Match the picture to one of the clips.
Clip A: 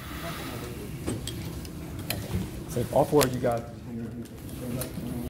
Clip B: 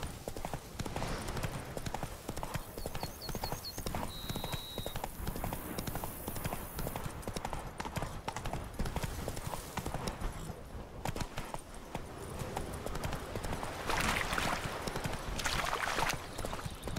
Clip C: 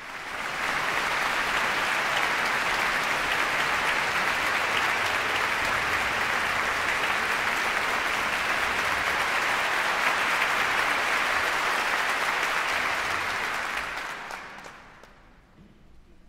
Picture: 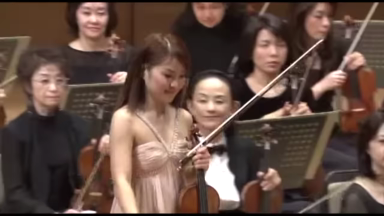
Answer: C